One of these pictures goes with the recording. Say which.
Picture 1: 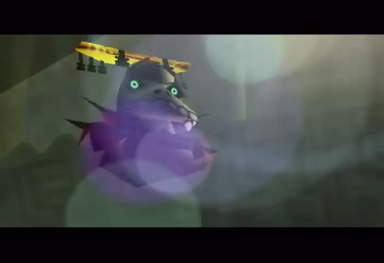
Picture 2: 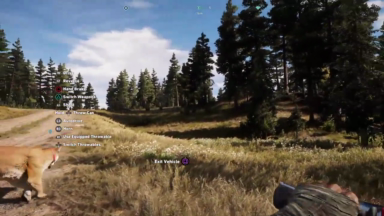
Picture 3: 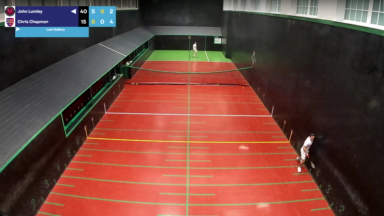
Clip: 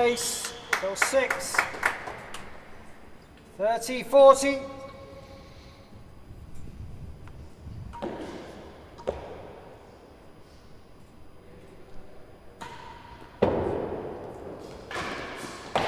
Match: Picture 3